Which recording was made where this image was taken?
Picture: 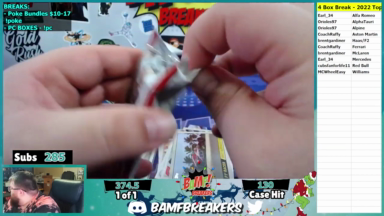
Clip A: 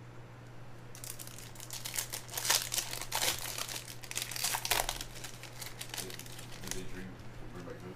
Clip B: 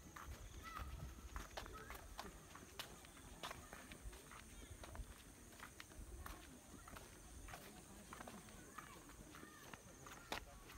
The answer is A